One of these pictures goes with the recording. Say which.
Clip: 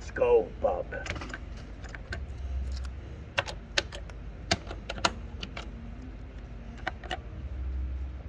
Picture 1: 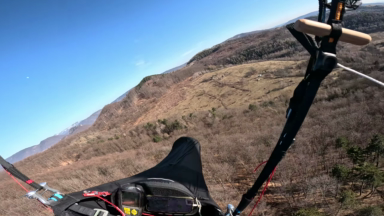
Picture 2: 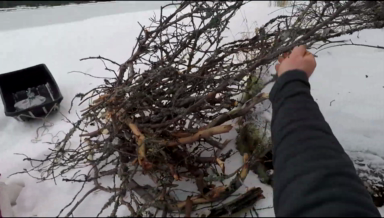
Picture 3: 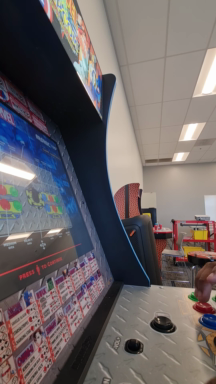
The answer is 3